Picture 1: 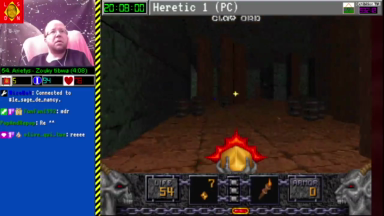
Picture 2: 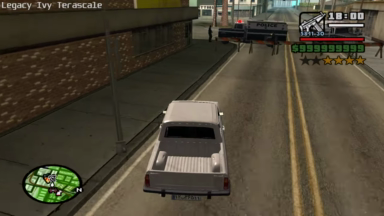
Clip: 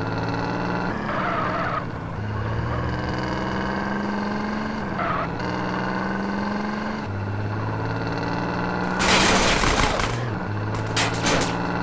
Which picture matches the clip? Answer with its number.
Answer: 2